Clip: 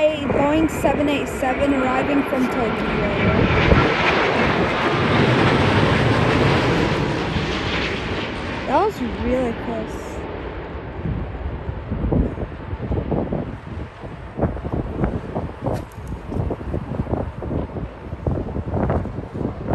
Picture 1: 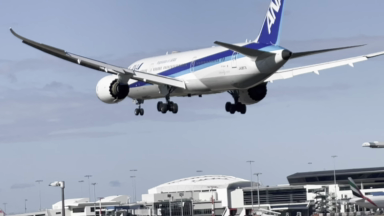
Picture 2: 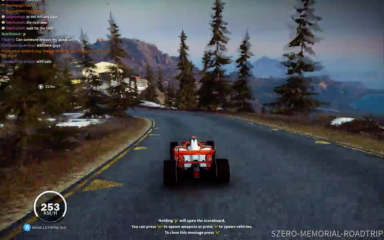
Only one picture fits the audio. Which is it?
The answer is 1